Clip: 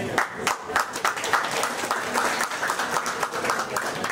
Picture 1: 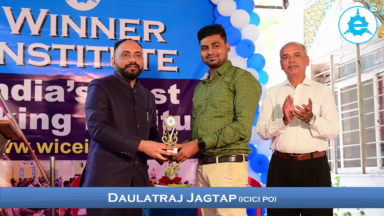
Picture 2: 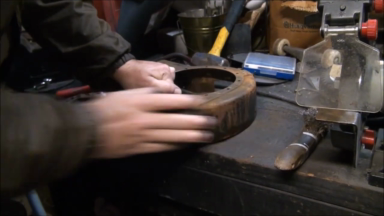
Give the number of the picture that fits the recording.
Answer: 1